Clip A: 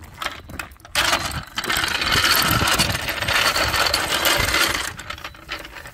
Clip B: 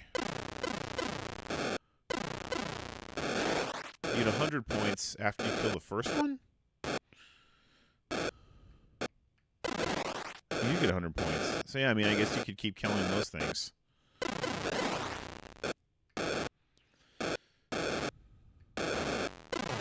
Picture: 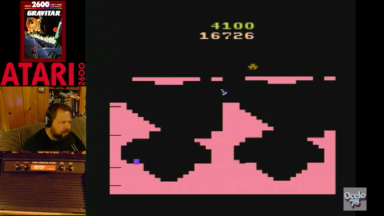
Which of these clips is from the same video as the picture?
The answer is B